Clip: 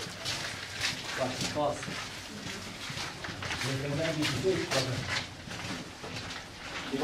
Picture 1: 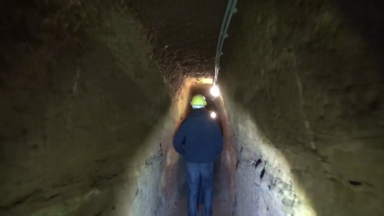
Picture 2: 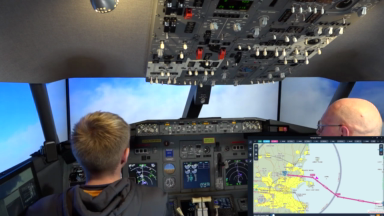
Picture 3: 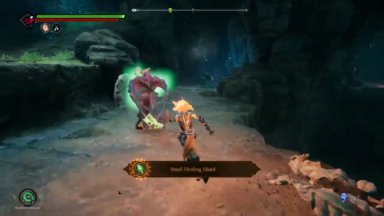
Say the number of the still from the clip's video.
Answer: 1